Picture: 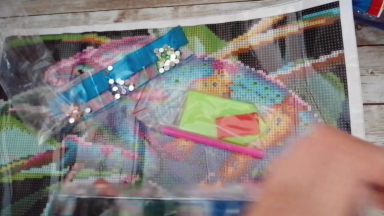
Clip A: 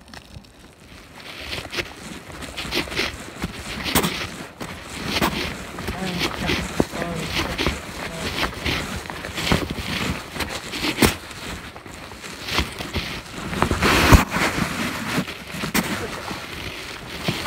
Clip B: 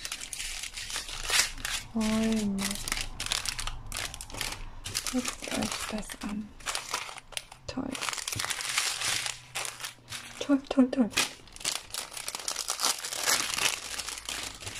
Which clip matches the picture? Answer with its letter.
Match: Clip B